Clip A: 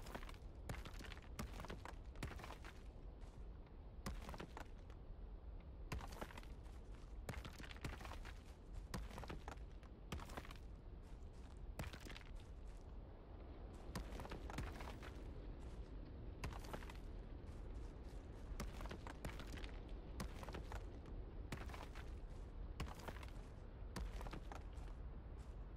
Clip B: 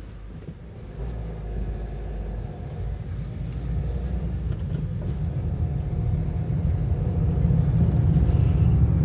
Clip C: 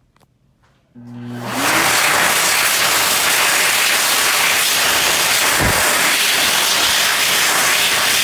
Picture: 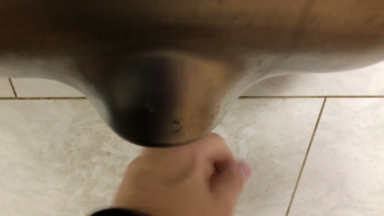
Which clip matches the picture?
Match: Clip C